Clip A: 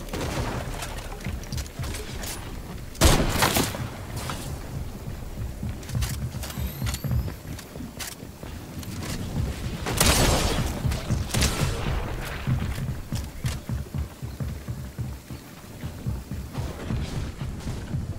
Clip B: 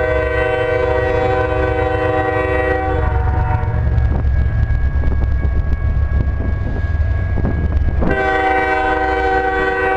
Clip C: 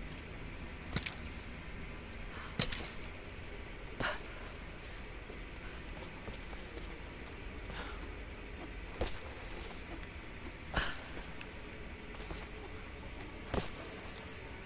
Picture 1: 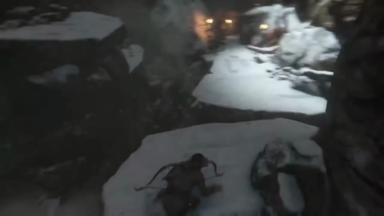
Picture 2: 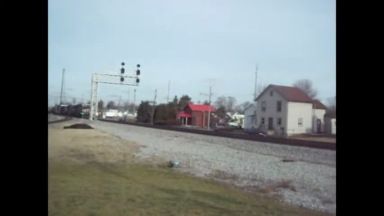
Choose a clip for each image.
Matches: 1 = C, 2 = B